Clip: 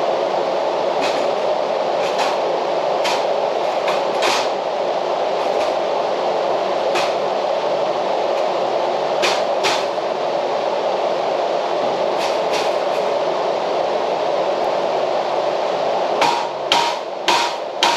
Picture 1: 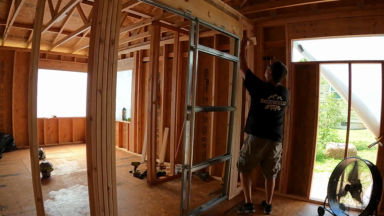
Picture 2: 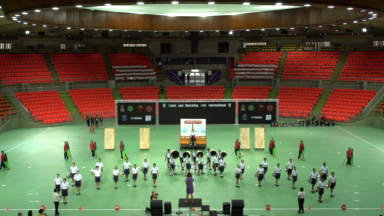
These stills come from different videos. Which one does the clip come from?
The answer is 1